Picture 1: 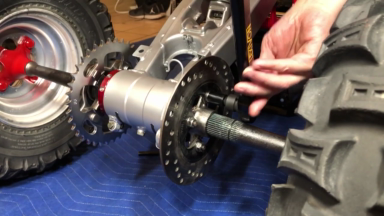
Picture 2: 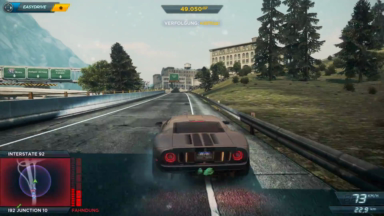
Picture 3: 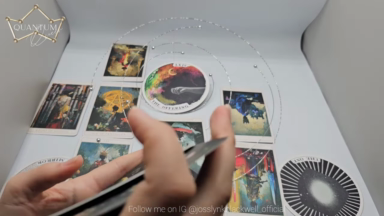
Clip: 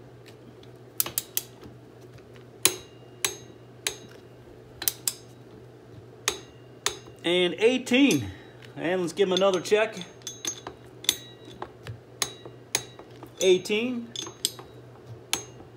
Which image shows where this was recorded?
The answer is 1